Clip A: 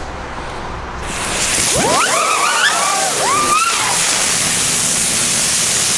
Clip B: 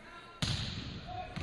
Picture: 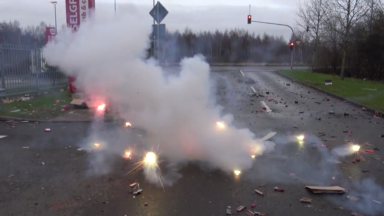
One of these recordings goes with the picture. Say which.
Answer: A